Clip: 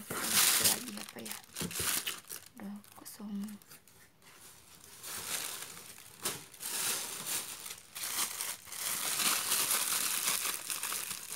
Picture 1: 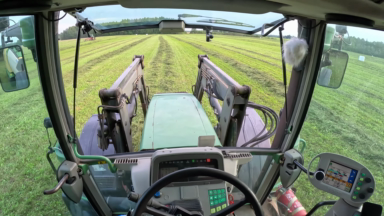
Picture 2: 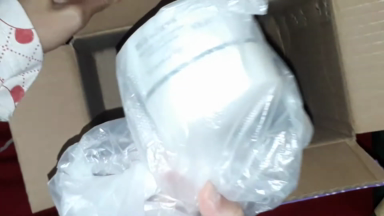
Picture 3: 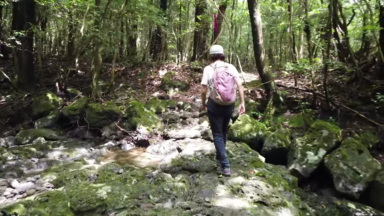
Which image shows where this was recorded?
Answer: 2